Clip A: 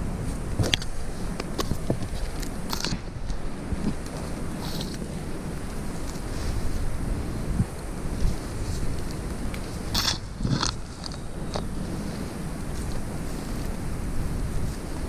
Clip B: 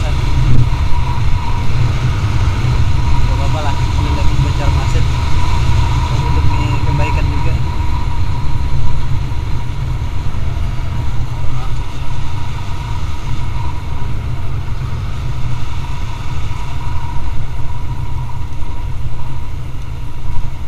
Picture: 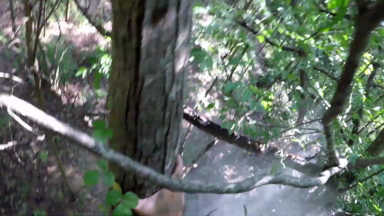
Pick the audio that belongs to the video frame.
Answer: A